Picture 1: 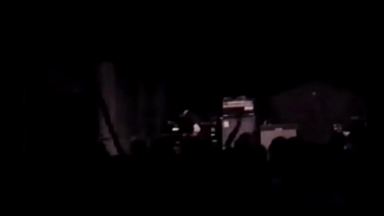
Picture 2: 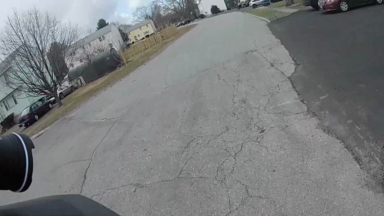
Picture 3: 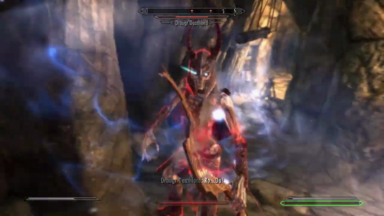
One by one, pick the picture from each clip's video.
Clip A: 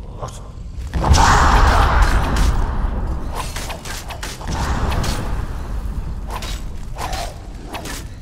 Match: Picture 3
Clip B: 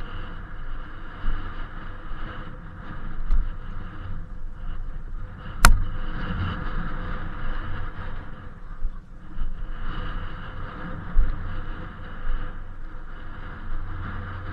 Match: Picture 2